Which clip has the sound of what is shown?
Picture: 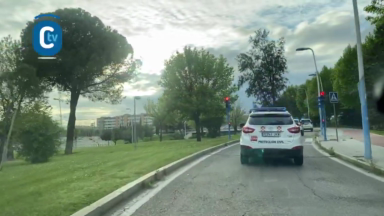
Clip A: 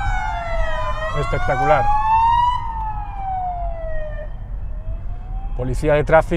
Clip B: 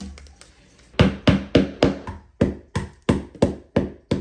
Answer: A